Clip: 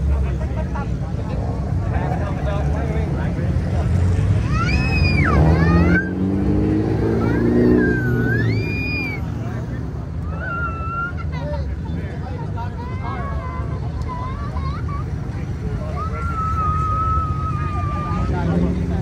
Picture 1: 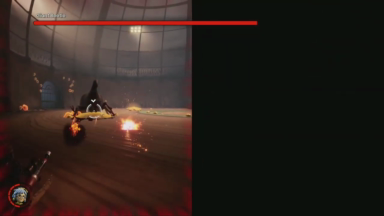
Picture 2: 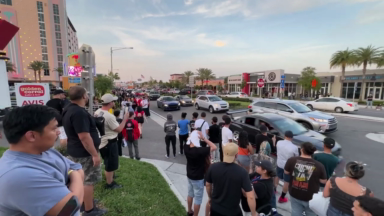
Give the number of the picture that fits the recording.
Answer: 2